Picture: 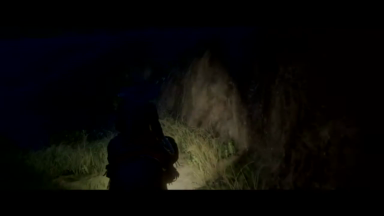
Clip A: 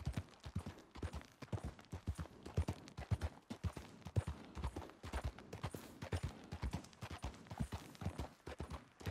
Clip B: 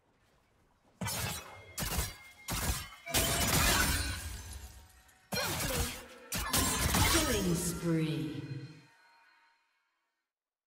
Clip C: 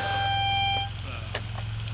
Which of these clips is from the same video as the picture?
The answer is A